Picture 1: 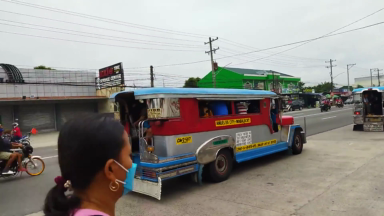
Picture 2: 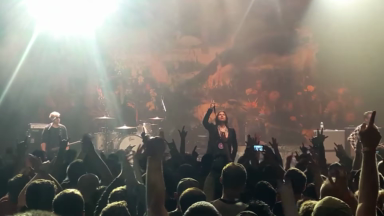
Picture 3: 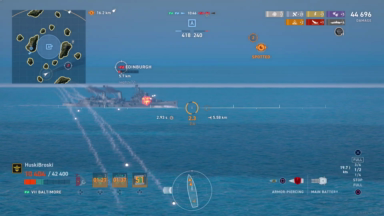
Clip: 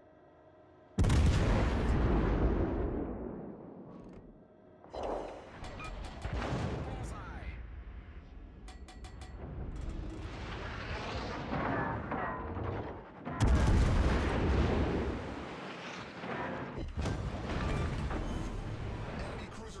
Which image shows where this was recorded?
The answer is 3